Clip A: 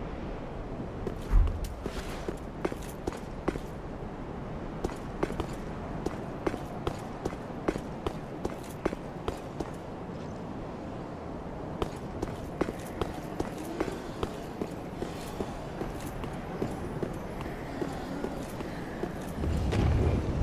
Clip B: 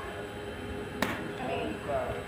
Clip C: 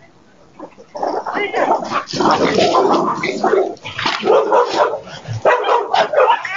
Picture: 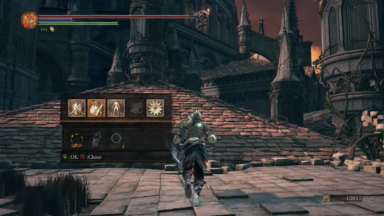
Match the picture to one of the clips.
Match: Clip A